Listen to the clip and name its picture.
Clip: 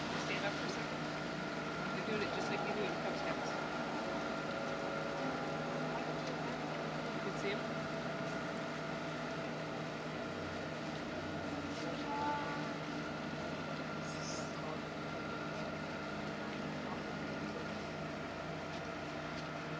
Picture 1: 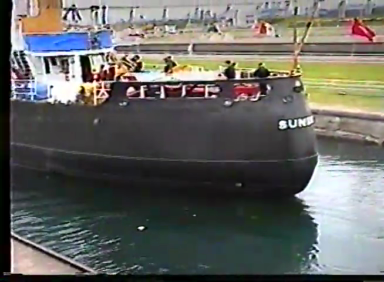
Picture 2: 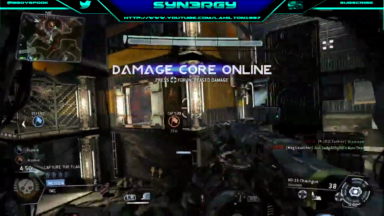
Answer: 1